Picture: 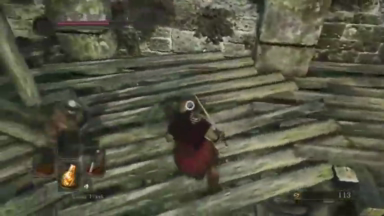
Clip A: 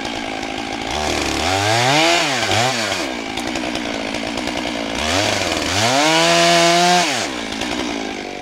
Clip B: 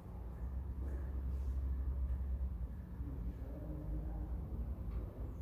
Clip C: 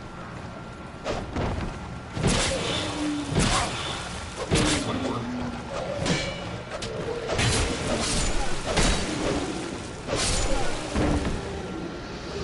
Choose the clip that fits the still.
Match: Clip C